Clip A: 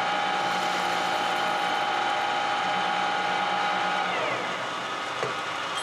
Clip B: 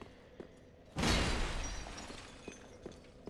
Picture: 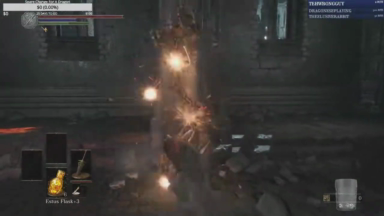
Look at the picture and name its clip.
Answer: B